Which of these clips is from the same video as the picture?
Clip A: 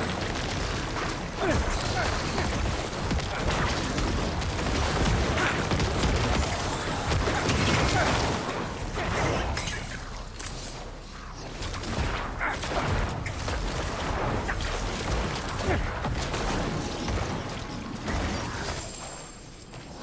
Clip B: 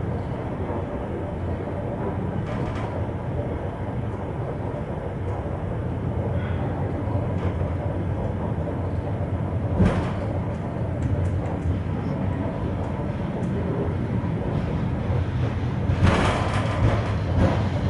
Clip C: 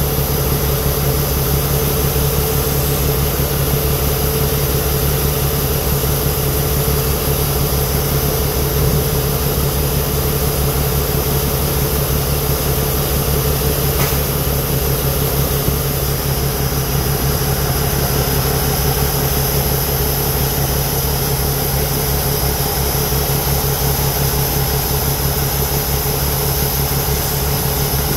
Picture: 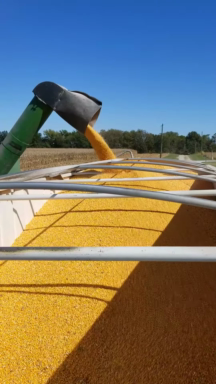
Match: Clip C